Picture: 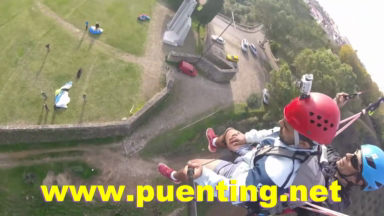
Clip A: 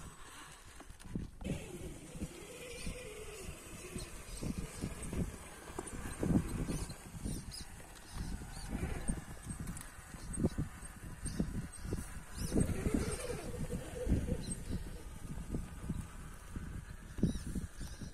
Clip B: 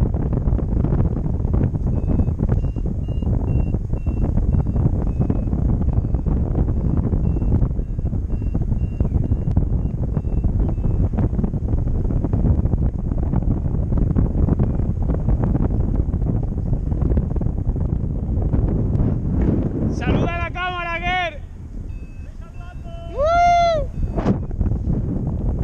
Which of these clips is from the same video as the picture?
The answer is B